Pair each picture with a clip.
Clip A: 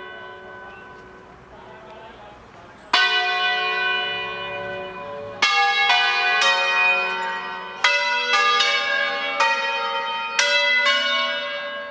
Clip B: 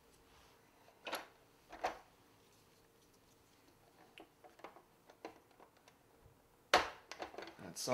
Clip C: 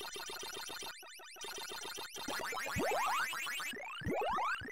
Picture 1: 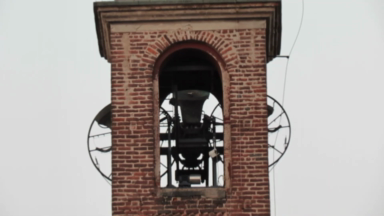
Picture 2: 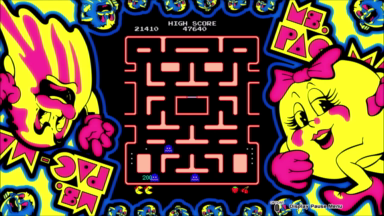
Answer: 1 A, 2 C